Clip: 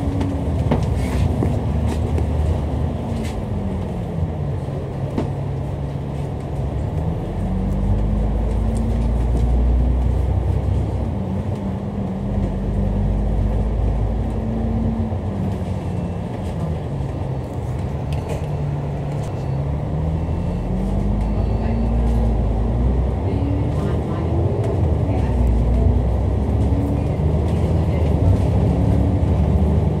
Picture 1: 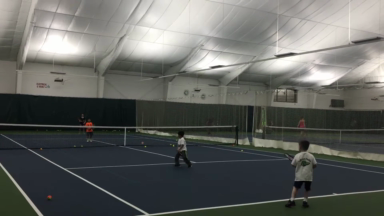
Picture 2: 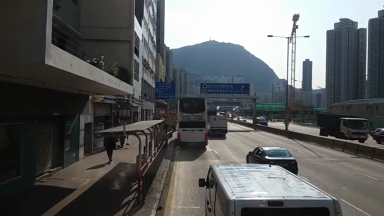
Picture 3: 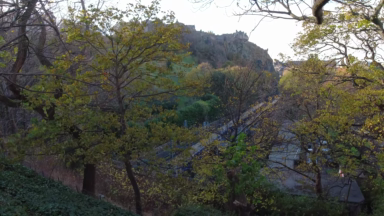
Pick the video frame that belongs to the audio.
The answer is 2